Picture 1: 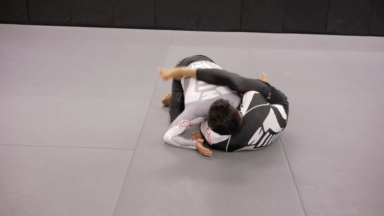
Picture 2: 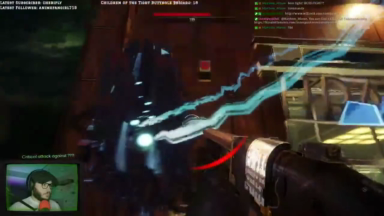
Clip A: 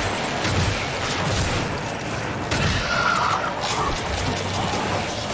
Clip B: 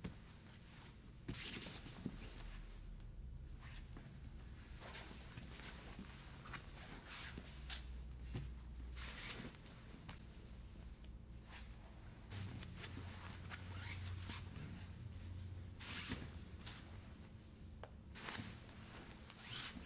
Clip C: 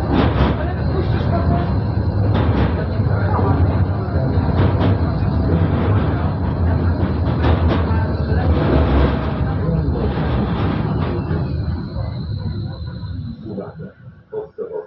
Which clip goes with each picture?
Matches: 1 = B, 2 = A